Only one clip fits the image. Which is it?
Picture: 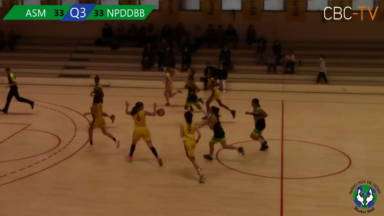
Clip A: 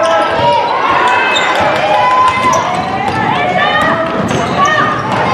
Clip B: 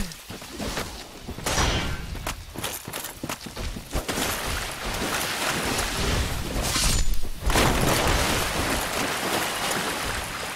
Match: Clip A